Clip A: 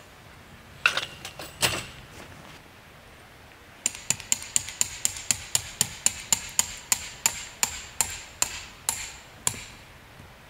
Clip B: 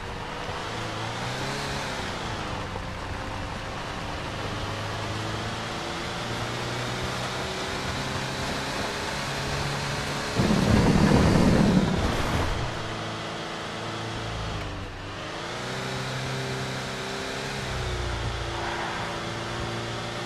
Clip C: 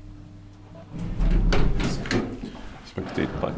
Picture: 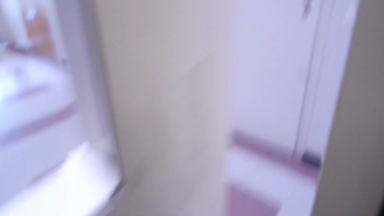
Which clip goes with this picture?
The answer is C